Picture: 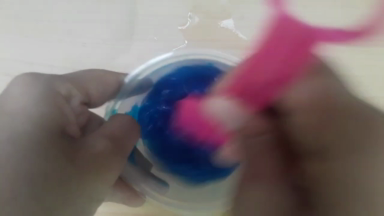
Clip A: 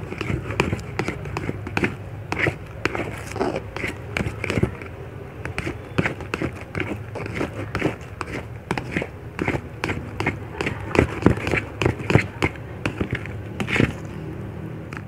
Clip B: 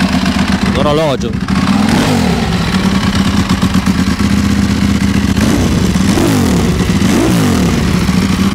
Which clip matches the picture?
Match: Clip A